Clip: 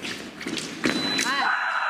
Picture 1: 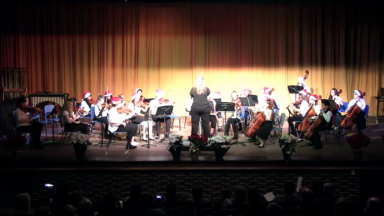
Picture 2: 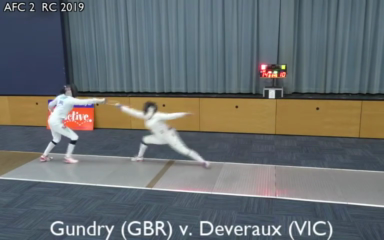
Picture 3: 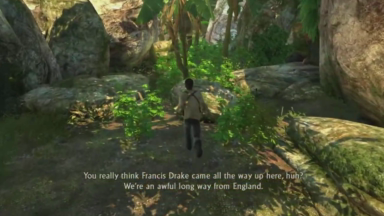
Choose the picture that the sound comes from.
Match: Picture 2